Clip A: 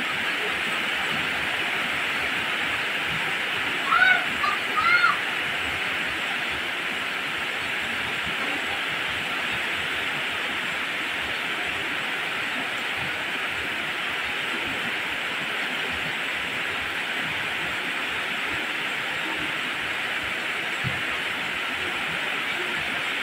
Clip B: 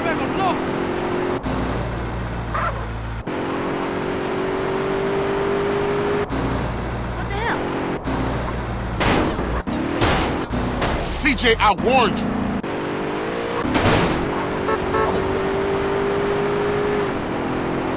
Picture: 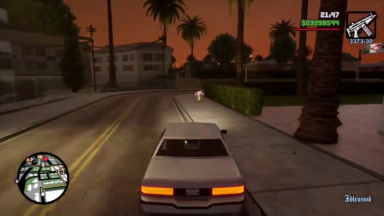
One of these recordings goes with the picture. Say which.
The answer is B